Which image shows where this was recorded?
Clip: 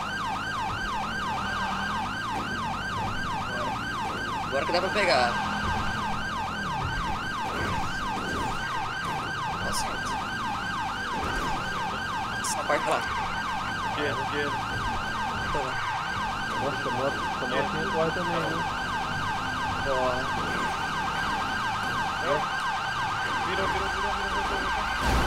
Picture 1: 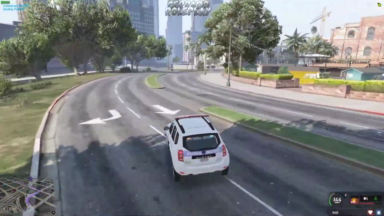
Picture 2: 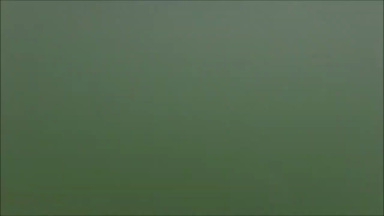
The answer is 1